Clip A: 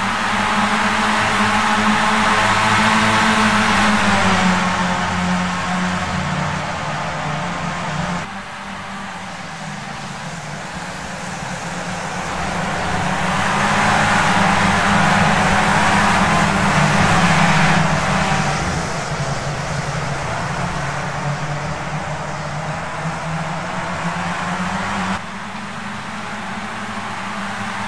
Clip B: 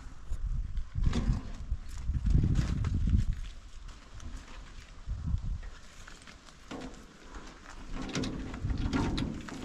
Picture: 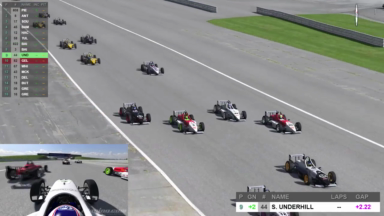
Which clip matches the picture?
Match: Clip A